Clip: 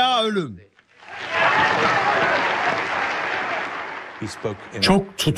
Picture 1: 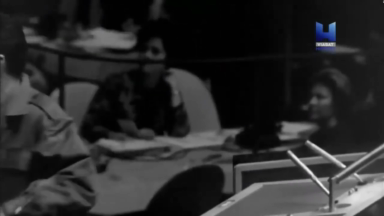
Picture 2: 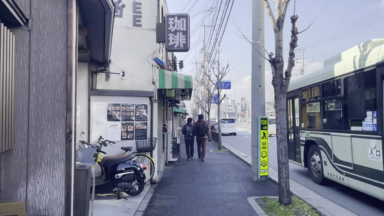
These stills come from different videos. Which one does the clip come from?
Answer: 1